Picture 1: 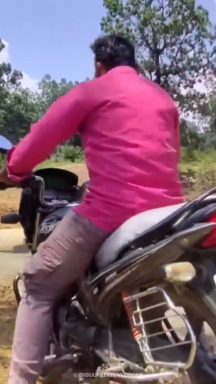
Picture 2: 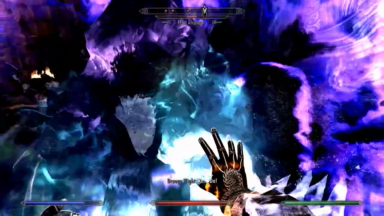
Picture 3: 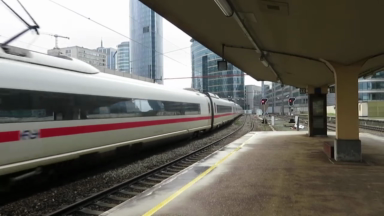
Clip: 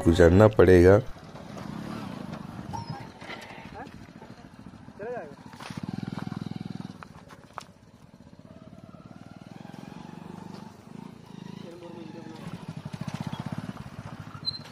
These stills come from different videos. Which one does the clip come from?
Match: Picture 1